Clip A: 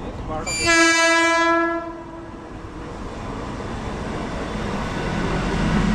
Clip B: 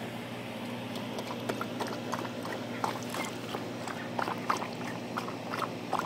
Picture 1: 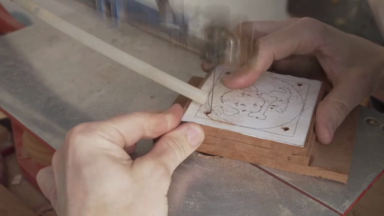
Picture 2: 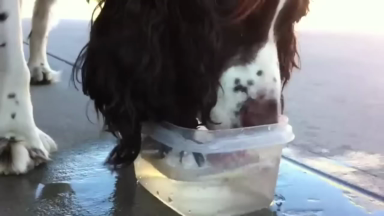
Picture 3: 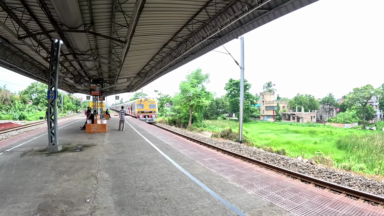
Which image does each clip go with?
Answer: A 3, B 2